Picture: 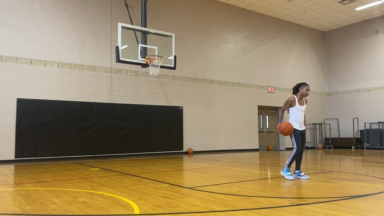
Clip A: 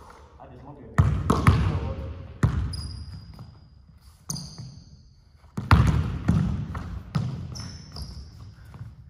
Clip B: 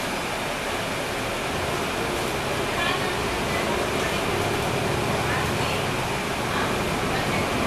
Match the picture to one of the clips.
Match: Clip A